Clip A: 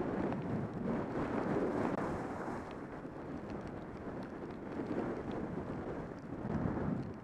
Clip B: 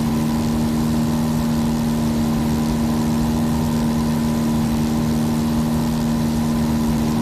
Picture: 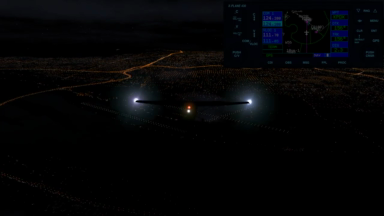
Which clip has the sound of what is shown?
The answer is B